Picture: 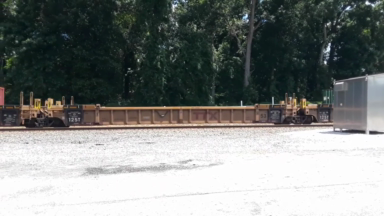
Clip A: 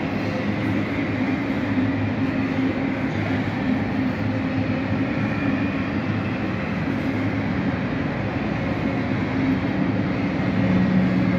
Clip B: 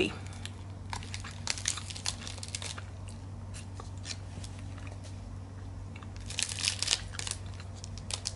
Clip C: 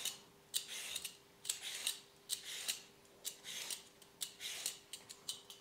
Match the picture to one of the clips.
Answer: A